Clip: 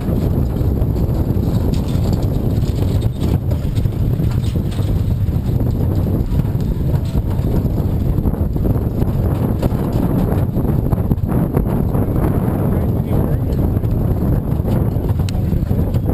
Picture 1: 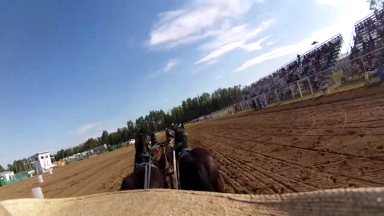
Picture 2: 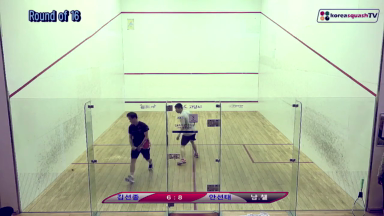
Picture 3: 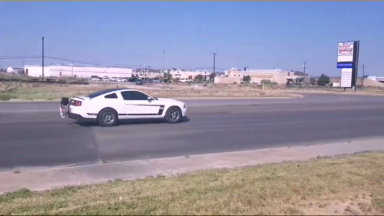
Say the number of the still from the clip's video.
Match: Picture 1